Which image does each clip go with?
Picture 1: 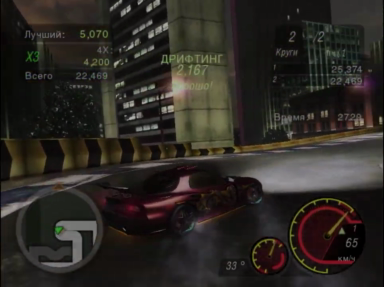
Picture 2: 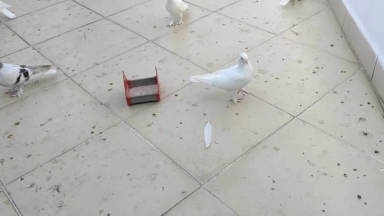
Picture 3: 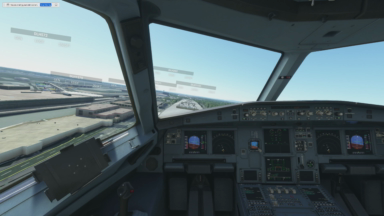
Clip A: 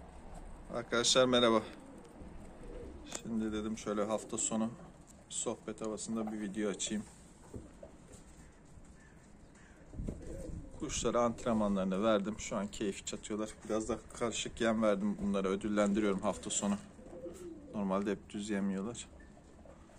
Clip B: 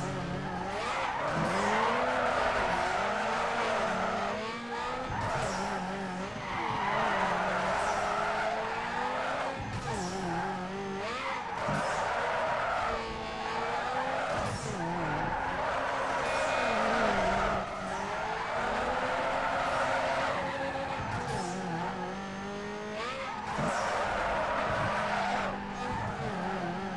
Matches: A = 2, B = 1